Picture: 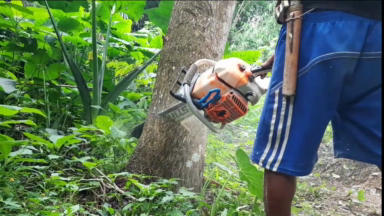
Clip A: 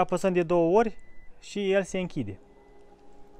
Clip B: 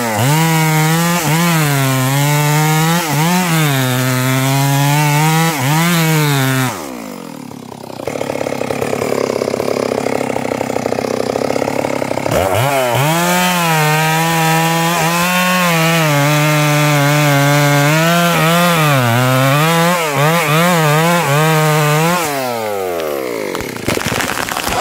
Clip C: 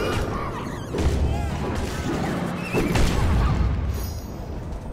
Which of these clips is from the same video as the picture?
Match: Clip B